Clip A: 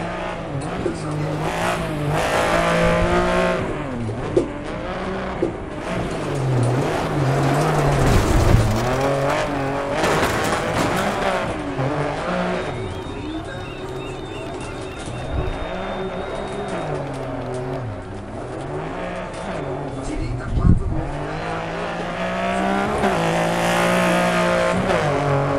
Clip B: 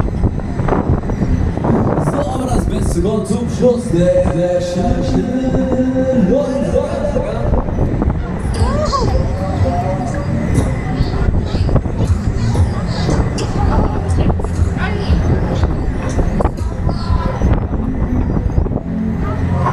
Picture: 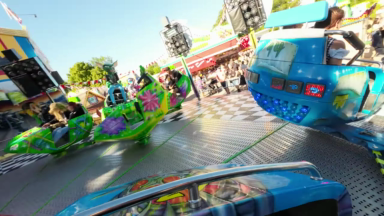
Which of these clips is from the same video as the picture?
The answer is B